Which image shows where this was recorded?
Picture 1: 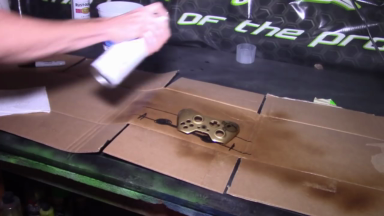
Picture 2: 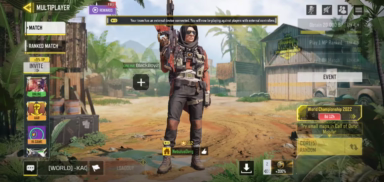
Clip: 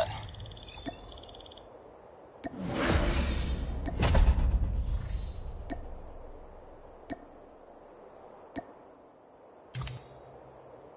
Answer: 2